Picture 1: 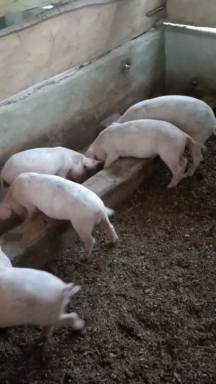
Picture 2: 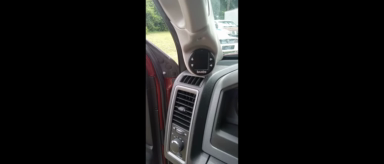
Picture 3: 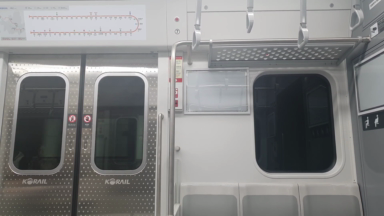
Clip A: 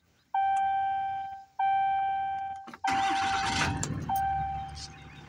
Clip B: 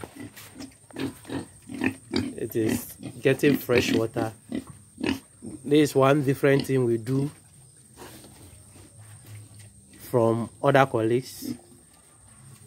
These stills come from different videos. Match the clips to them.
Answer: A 2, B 1